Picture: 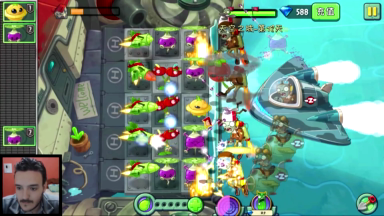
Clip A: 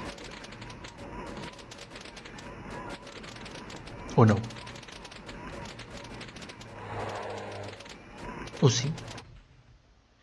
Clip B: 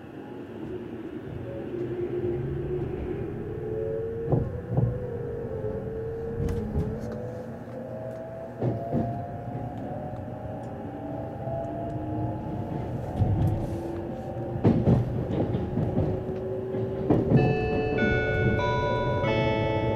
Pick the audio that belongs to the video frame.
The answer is A